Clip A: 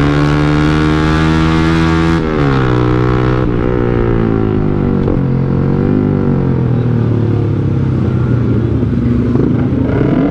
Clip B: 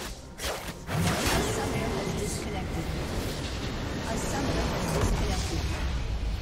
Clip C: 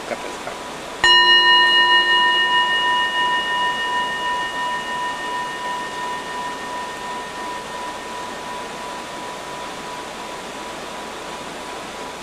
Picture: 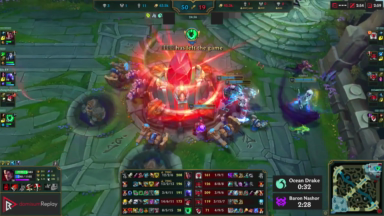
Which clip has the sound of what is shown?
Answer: B